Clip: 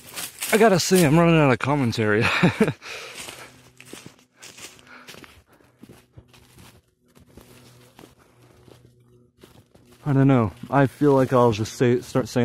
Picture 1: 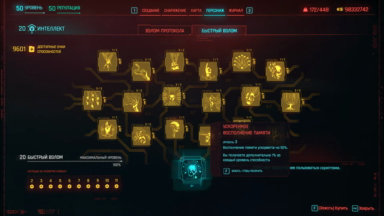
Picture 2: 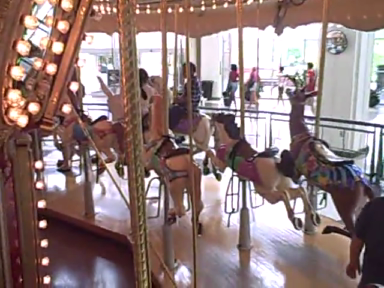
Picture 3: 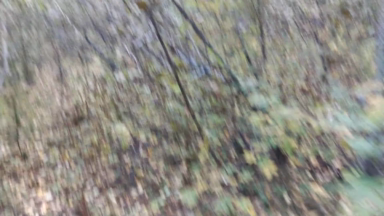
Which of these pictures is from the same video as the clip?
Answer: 3